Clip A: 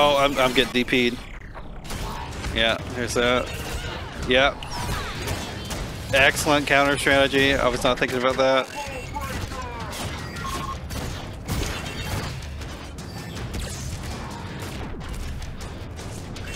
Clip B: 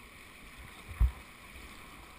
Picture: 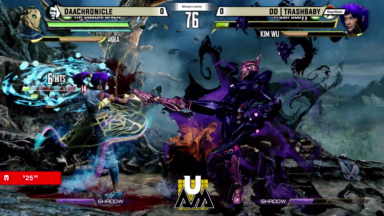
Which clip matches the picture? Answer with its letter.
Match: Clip A